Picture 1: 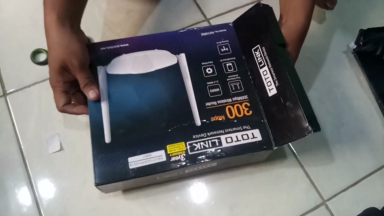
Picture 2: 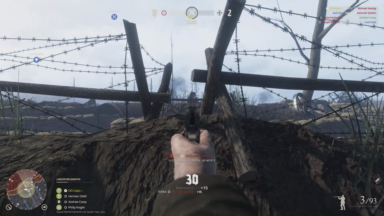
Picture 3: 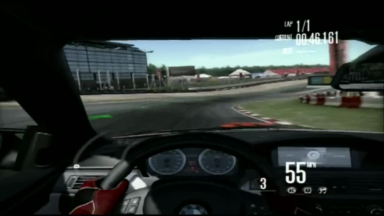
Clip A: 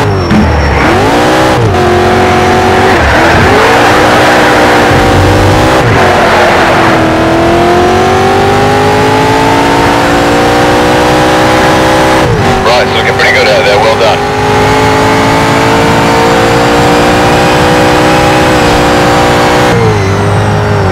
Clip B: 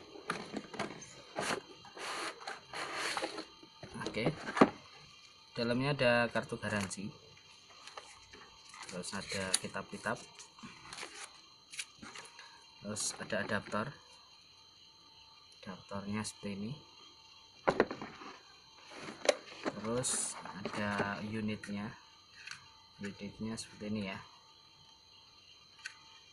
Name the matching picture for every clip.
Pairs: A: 3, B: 1